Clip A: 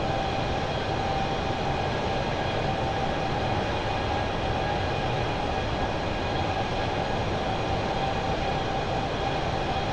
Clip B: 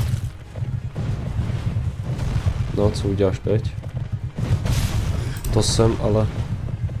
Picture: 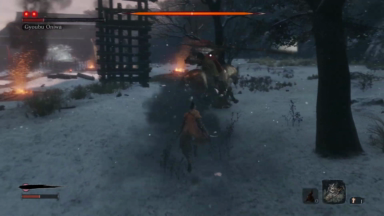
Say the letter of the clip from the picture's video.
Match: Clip B